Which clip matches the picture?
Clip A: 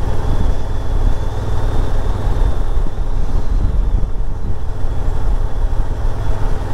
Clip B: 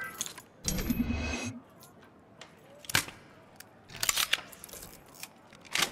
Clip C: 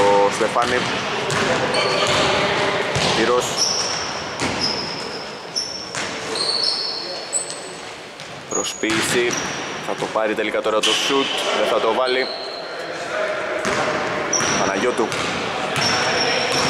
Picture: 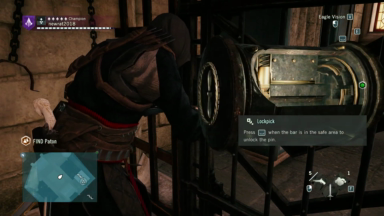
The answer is B